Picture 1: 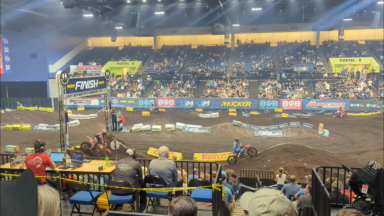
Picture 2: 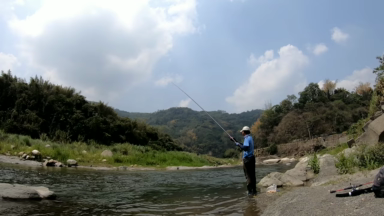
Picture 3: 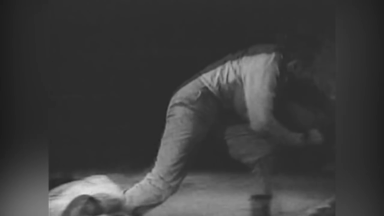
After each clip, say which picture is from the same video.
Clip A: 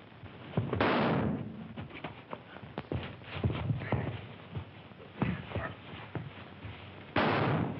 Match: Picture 3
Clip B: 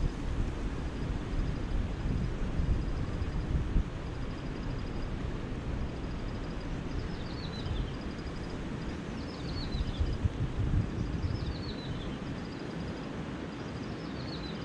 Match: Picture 2